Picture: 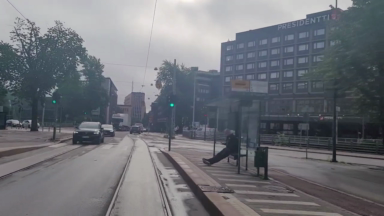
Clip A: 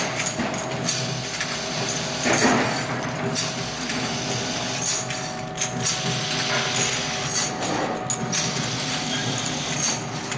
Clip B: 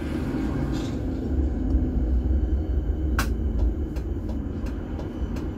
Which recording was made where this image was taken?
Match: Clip B